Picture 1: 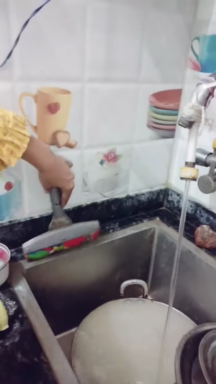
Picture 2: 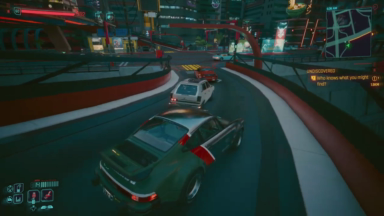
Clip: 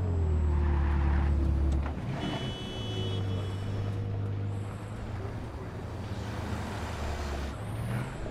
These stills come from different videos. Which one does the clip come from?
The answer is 2